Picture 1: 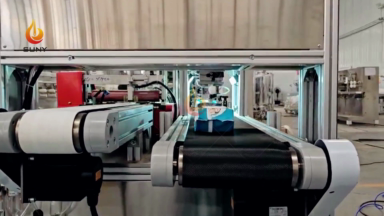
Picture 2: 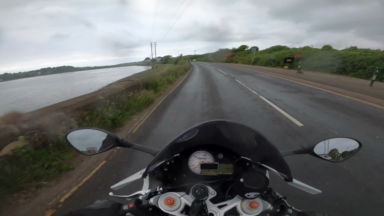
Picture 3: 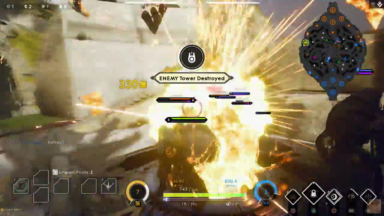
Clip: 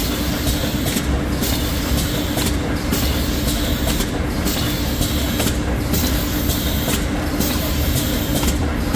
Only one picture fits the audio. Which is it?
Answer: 1